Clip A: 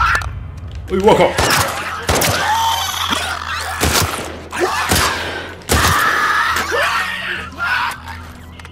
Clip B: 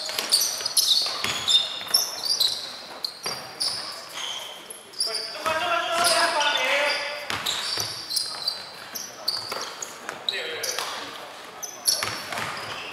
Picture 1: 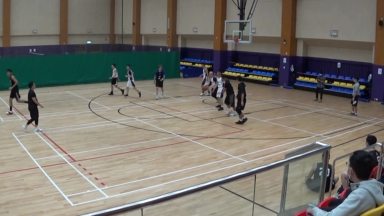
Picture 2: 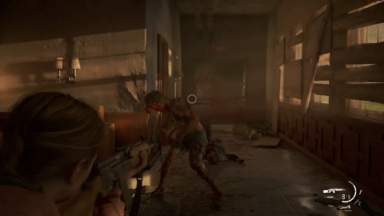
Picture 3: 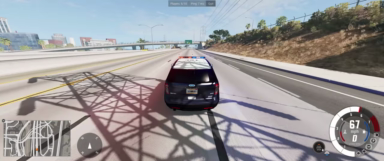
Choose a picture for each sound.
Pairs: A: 2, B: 1